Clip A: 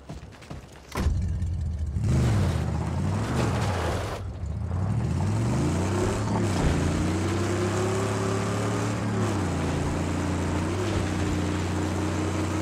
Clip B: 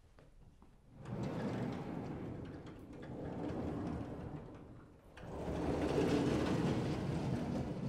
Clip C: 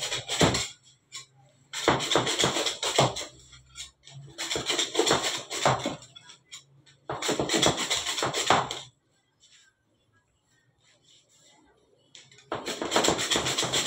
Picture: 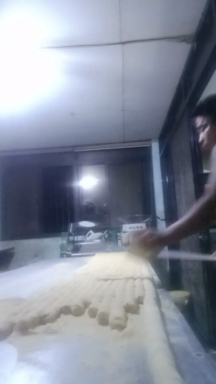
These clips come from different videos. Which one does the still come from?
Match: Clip C